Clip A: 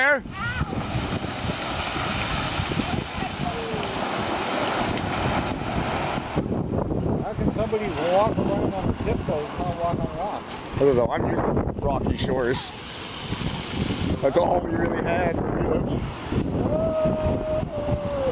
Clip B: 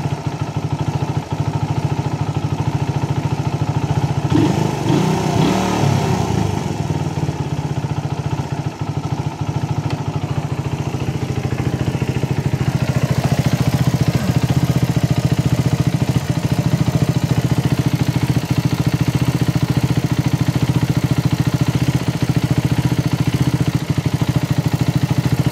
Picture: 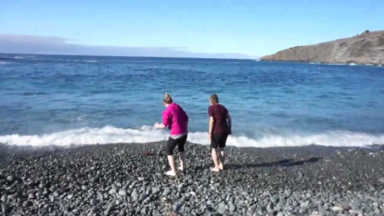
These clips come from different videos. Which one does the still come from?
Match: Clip A